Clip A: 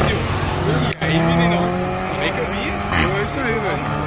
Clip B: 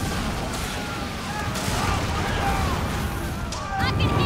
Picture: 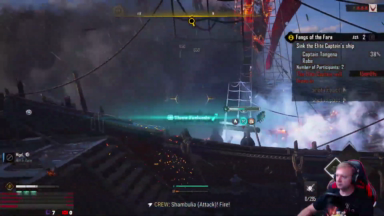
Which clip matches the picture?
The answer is B